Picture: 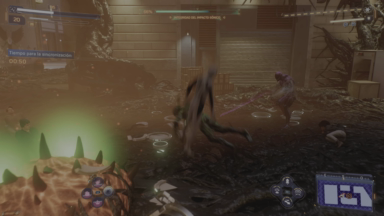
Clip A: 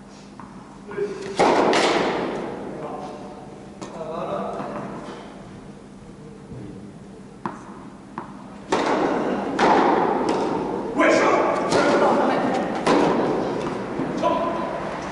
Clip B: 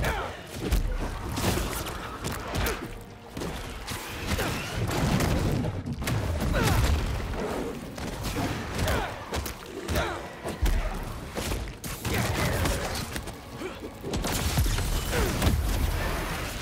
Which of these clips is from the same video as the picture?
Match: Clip B